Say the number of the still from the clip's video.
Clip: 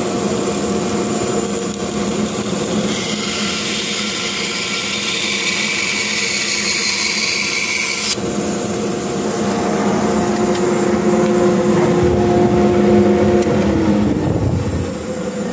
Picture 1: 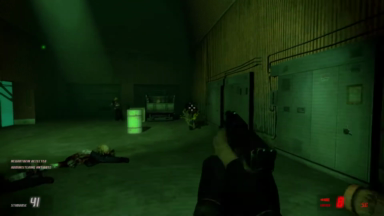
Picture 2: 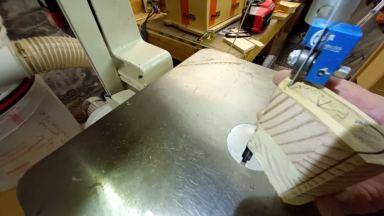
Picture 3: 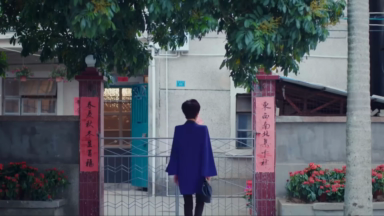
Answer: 2